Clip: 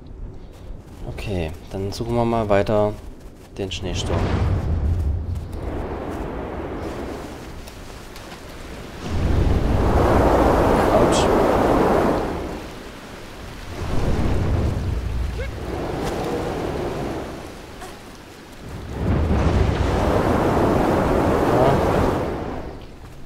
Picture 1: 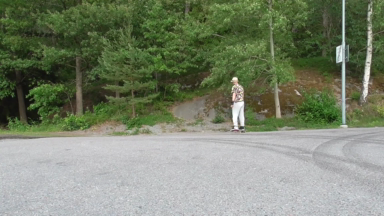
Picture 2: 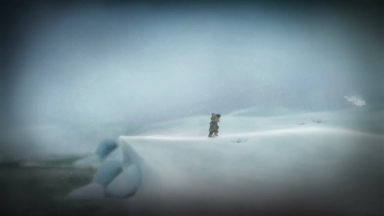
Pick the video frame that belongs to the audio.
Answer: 2